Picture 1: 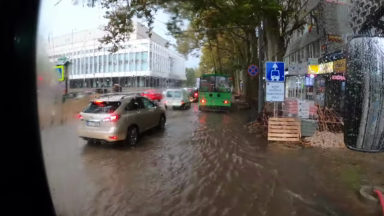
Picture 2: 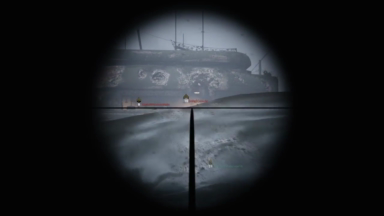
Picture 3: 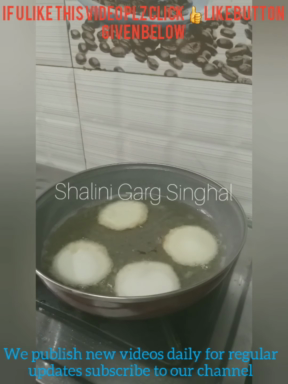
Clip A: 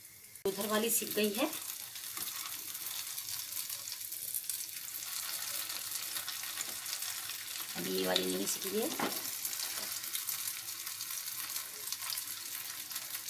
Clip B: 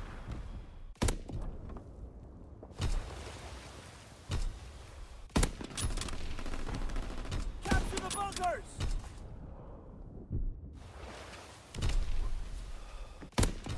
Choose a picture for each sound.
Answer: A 3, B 2